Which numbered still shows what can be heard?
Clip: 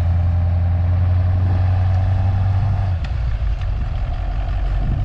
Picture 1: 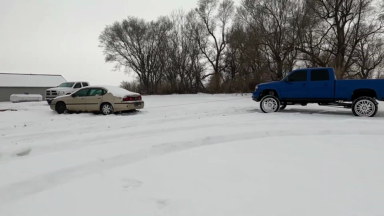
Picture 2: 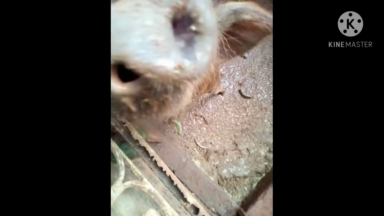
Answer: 1